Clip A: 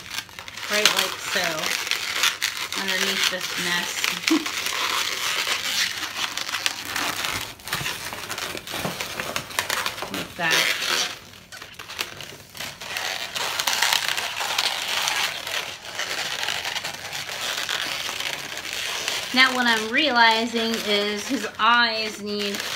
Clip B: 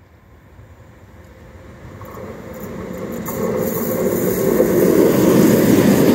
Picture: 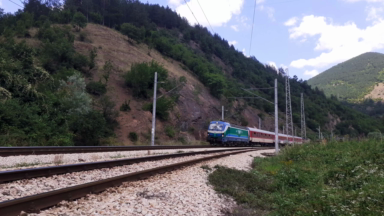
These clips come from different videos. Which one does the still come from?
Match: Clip B